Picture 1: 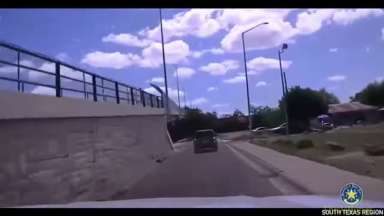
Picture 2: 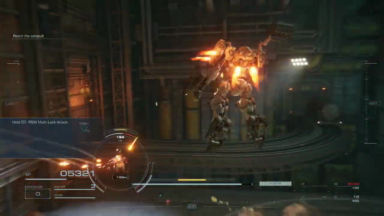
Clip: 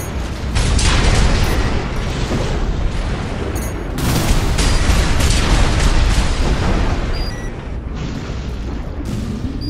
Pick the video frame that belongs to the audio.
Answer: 2